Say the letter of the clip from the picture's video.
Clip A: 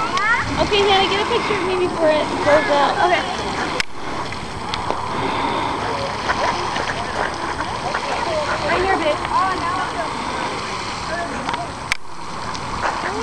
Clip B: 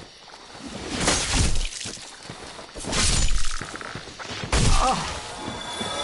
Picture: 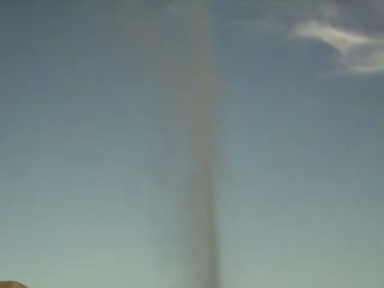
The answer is A